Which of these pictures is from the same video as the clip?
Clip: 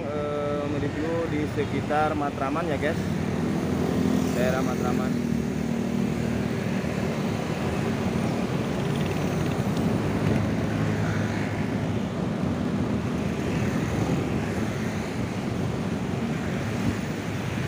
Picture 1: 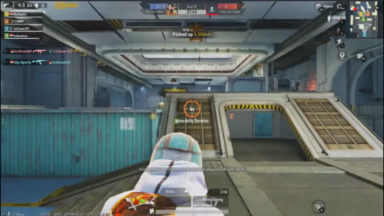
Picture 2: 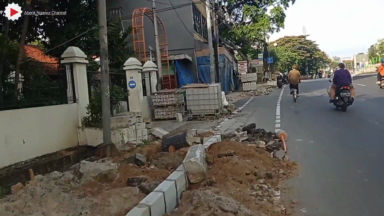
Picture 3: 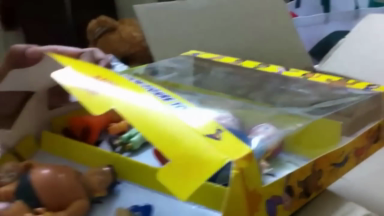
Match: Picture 2